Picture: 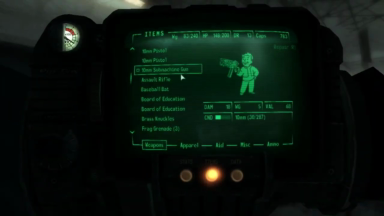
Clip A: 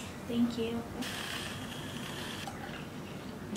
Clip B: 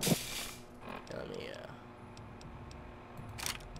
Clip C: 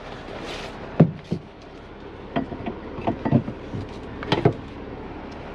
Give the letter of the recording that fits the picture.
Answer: B